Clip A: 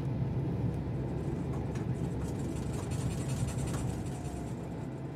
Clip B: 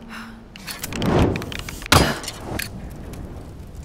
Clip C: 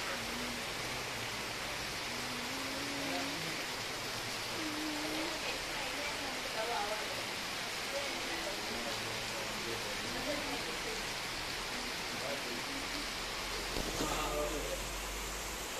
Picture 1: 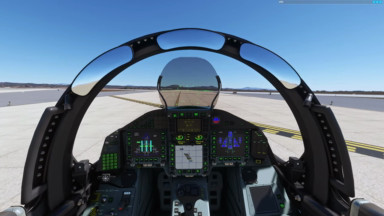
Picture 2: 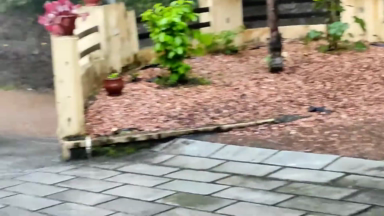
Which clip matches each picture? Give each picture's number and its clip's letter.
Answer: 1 A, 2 C